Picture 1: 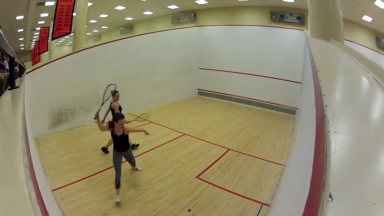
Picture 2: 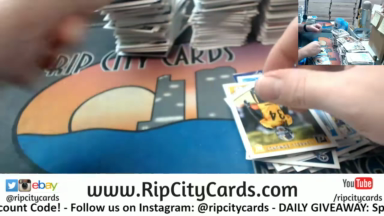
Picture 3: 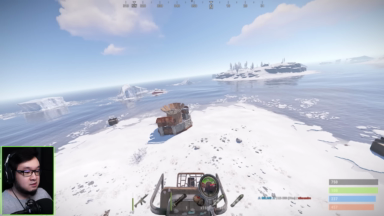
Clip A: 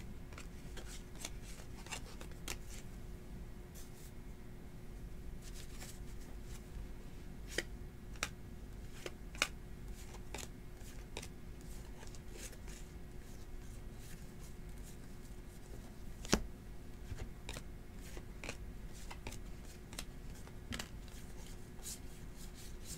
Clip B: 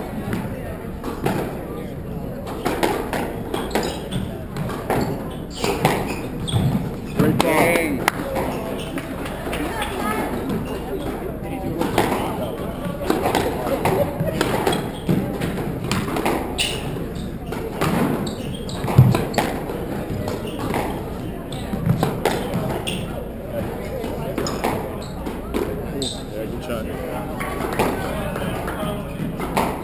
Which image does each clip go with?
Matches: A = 2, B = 1